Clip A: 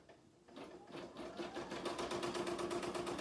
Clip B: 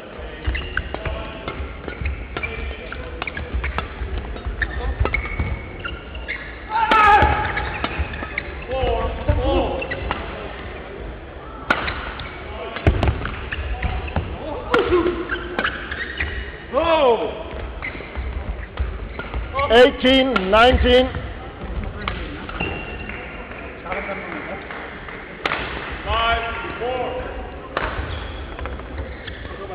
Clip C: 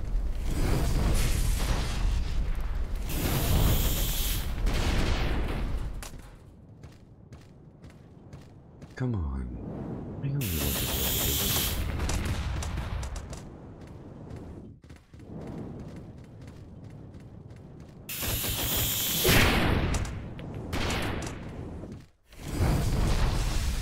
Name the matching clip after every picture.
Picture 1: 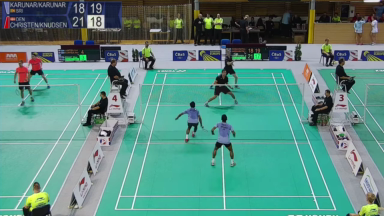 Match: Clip B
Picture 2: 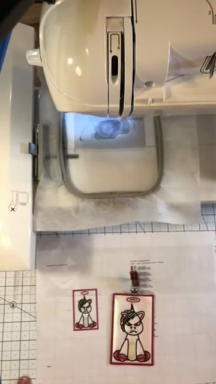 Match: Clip A